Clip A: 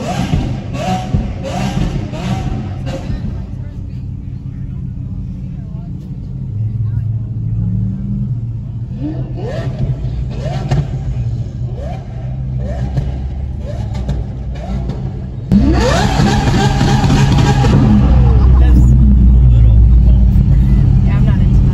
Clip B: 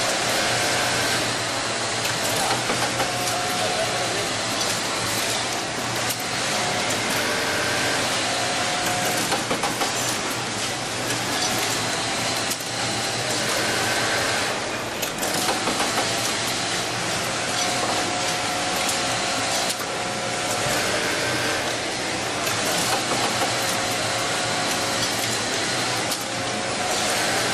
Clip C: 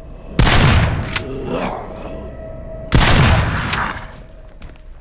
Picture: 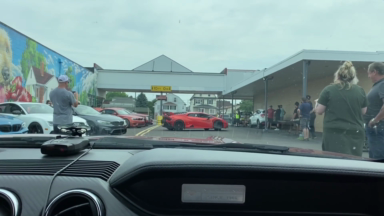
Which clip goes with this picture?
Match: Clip A